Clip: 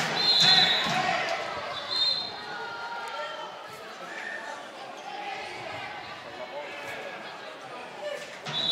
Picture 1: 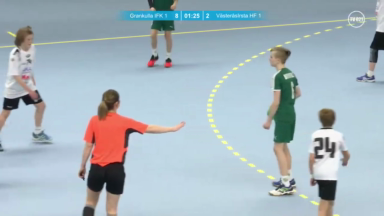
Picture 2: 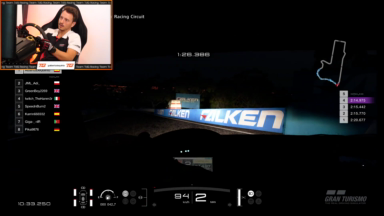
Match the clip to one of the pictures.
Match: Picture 1